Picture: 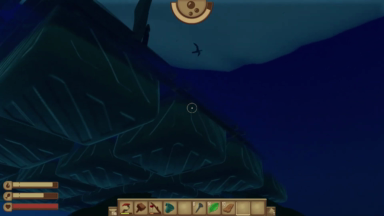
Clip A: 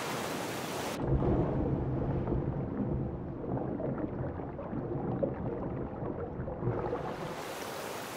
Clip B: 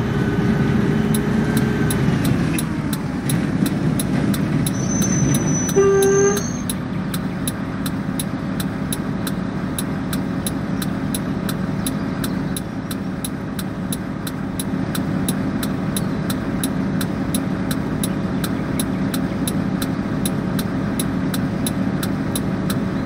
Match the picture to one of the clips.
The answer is A